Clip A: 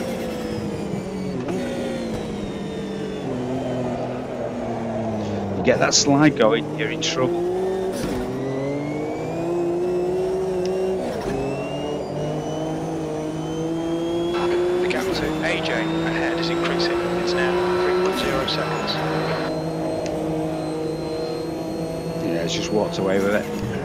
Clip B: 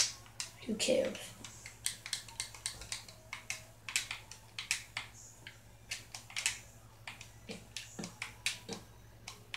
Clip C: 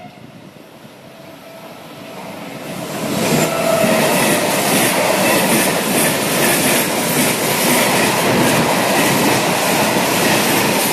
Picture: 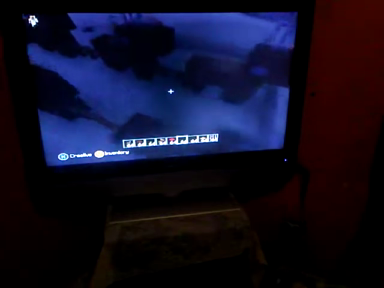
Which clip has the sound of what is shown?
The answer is B